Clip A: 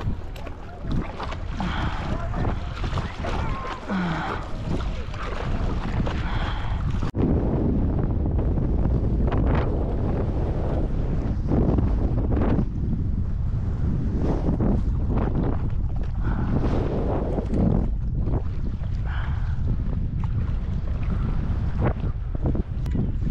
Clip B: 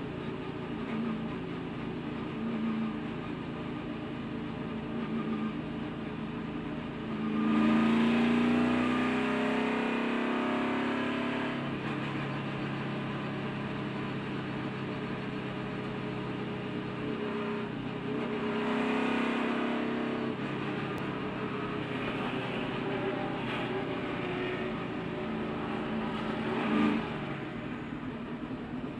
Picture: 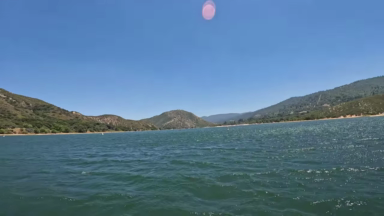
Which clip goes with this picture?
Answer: A